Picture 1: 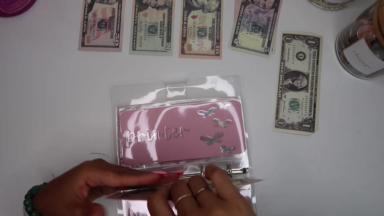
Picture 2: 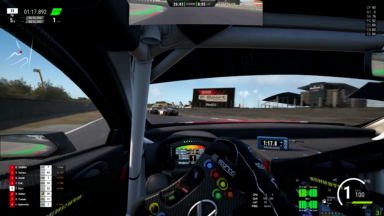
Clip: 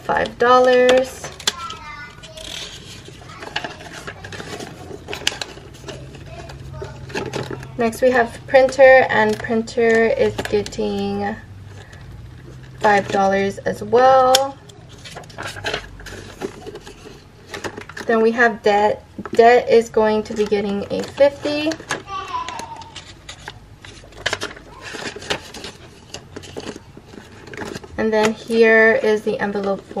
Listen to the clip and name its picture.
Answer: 1